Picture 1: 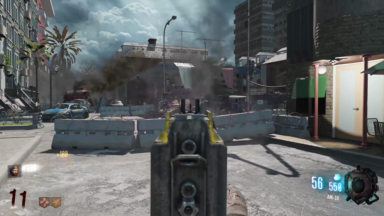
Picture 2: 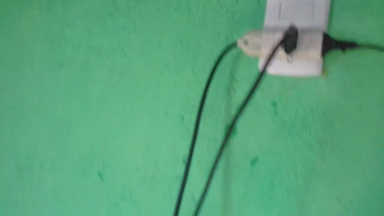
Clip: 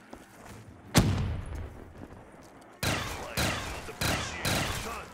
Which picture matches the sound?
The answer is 1